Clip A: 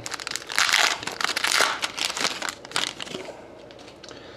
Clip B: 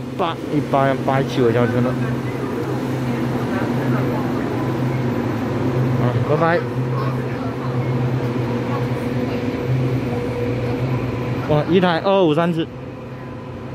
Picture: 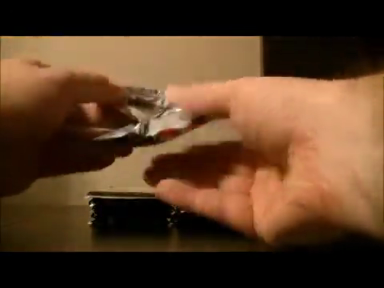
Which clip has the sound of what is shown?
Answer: A